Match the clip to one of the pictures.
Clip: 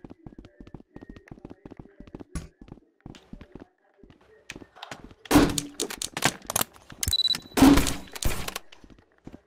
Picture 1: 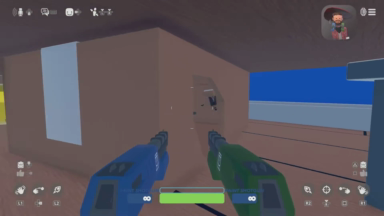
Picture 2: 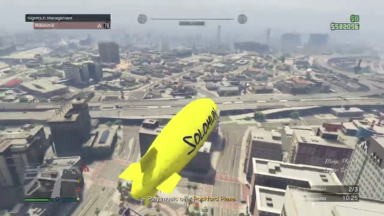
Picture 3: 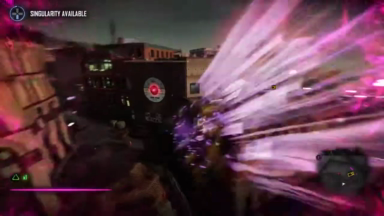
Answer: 1